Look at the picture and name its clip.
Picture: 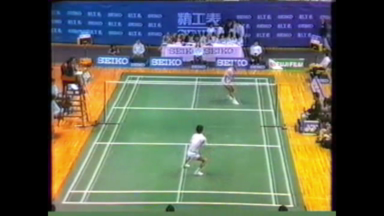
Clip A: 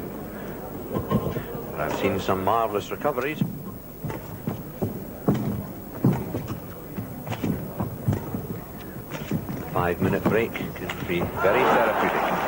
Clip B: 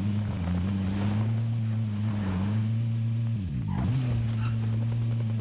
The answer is A